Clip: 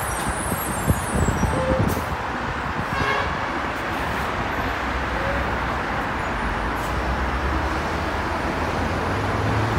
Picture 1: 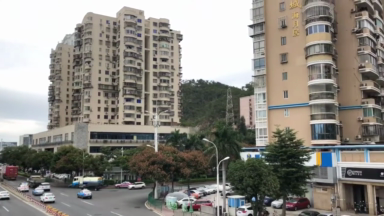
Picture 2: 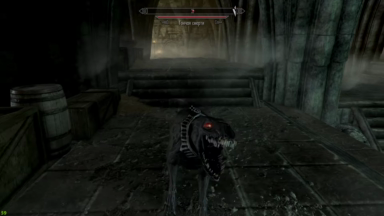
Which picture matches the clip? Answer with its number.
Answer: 1